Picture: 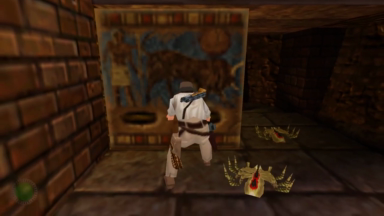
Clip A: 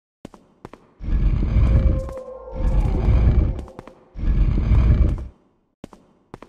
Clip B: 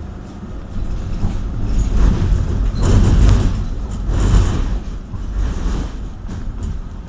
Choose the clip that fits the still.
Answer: A